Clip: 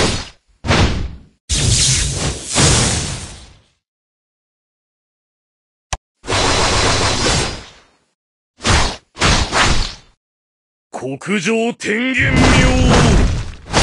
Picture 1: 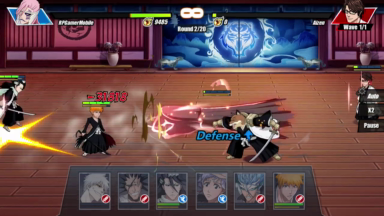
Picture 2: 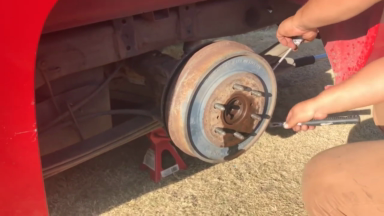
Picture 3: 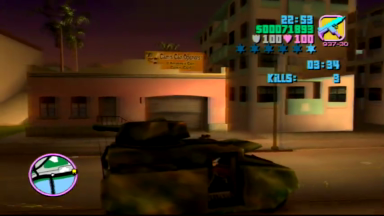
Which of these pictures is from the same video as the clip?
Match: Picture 1